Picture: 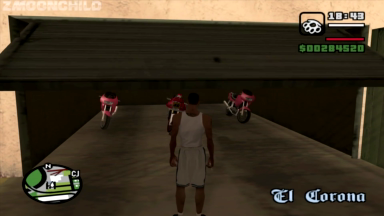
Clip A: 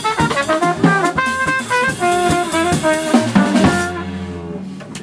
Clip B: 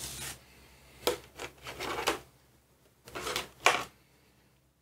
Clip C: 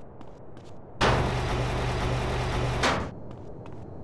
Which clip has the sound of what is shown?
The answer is C